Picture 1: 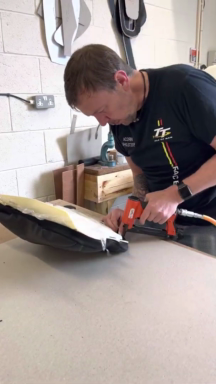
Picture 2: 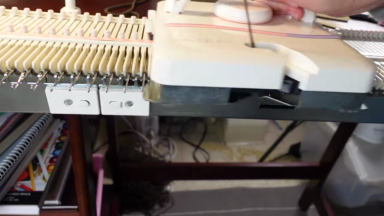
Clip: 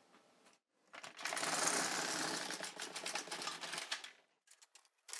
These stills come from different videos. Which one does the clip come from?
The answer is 2